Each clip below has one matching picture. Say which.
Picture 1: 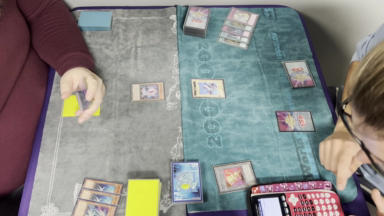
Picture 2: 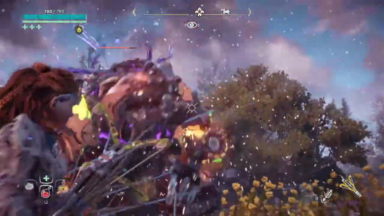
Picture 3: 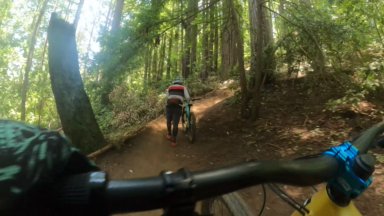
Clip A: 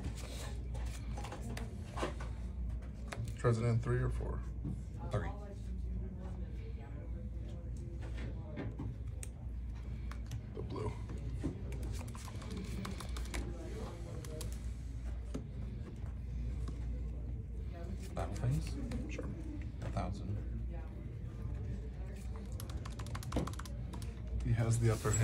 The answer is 1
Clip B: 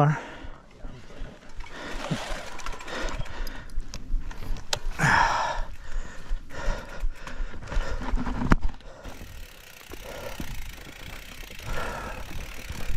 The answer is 3